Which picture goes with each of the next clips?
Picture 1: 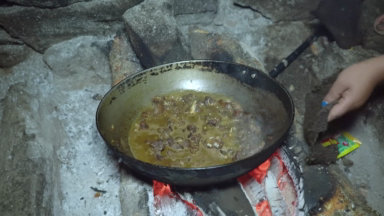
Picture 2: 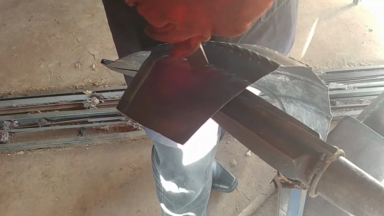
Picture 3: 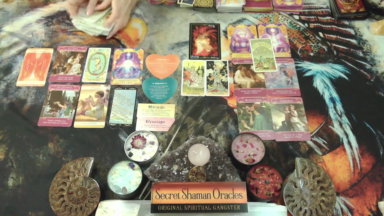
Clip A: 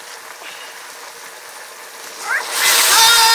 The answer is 1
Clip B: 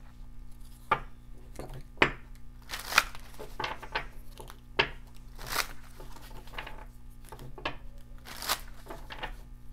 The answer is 3